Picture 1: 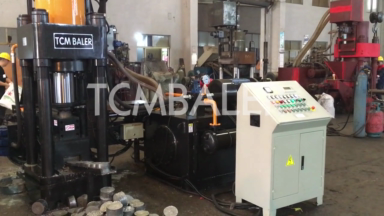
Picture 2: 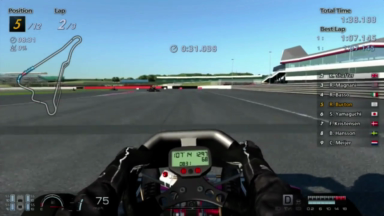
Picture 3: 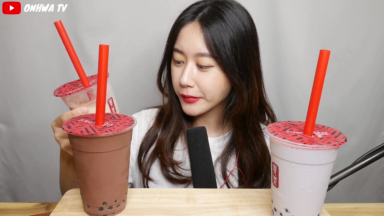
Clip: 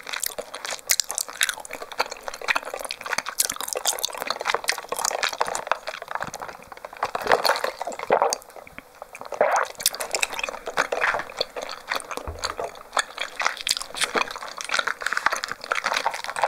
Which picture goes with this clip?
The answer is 3